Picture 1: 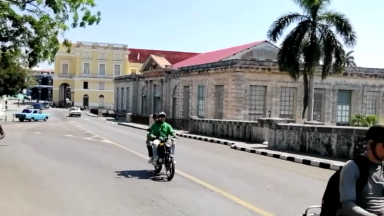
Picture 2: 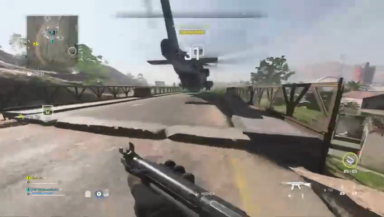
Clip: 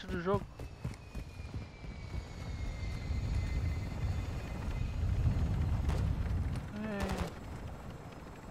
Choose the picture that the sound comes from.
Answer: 2